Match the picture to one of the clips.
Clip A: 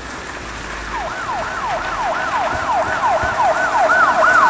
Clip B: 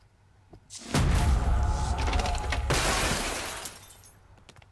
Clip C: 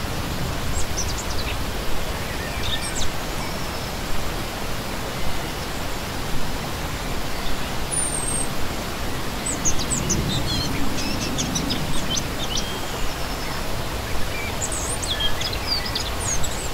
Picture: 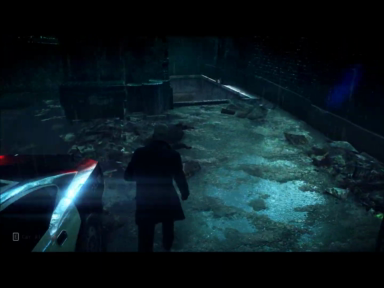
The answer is A